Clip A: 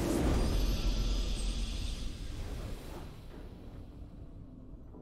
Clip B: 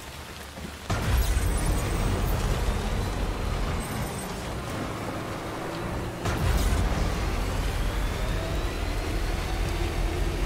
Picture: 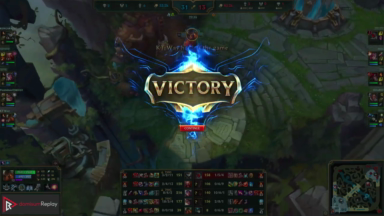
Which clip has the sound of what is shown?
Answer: A